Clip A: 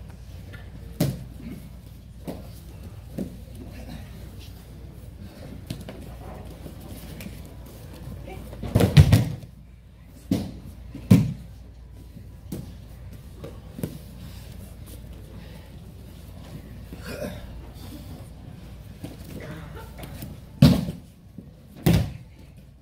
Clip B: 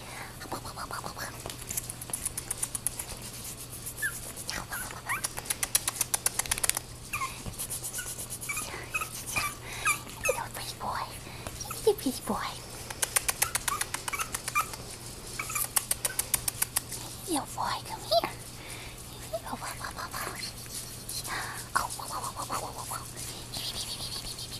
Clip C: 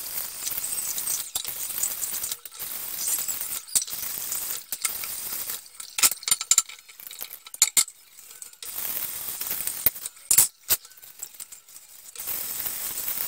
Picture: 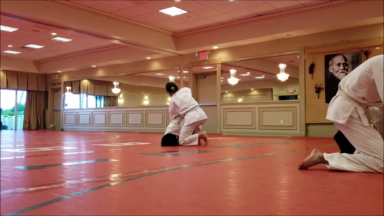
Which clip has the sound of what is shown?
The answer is A